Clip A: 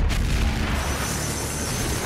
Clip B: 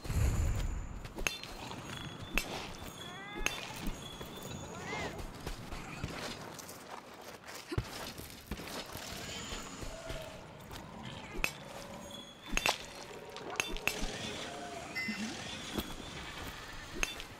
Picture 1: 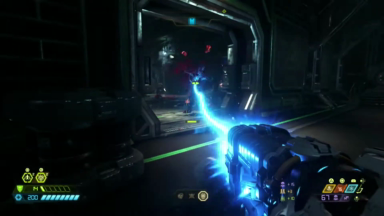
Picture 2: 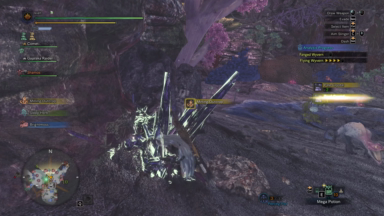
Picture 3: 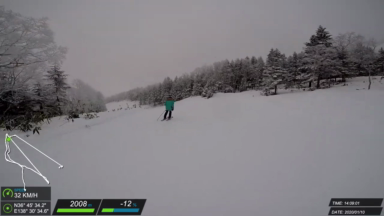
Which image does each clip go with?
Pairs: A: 1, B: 2